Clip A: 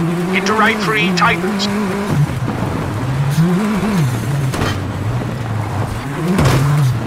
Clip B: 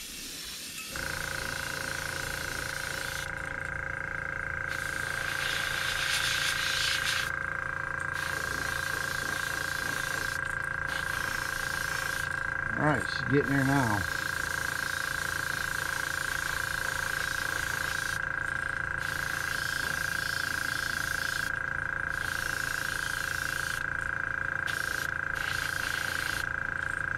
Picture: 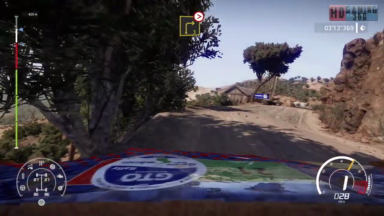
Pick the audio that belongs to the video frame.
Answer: A